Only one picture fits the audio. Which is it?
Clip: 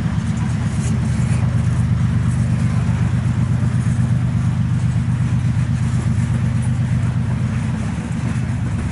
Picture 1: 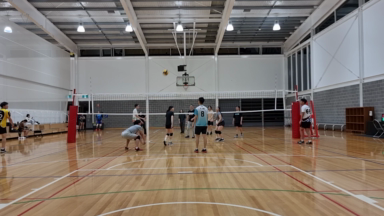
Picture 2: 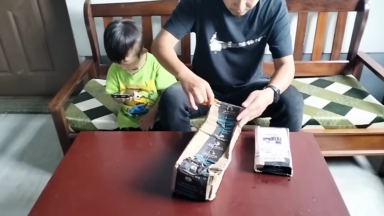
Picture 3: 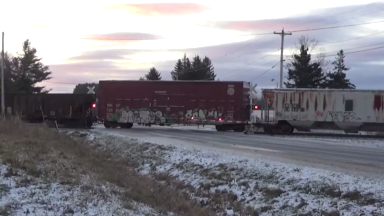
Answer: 3